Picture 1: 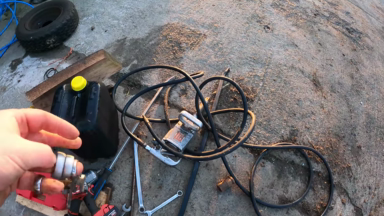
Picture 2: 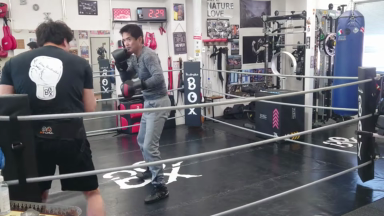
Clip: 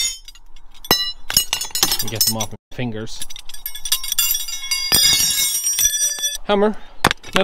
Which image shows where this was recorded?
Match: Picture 1